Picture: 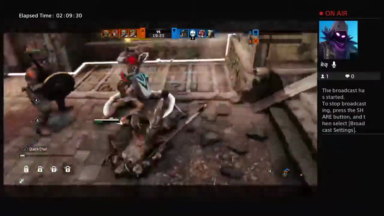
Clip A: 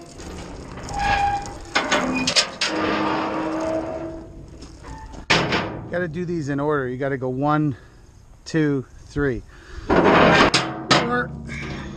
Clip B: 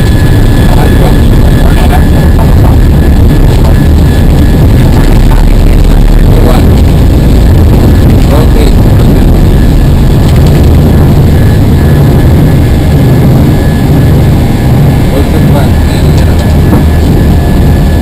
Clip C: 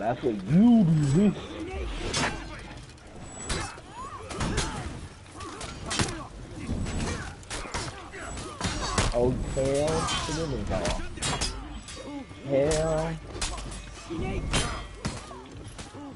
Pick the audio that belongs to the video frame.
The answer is C